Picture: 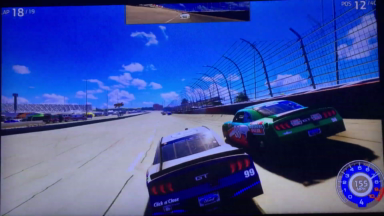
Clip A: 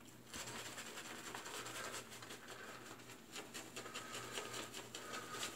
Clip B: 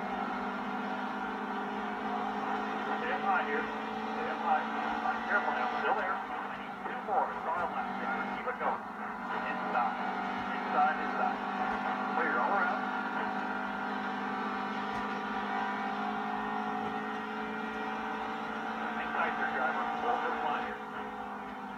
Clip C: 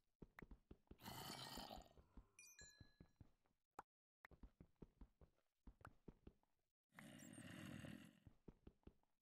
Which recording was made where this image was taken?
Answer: B